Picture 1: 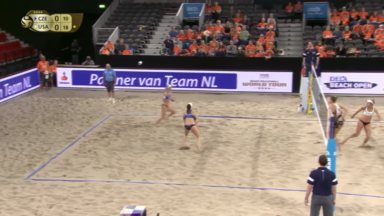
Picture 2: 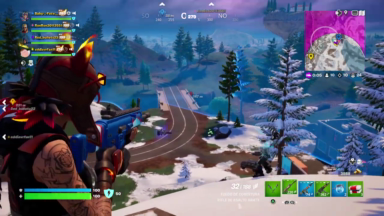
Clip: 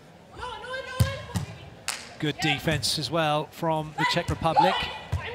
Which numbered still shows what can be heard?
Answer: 1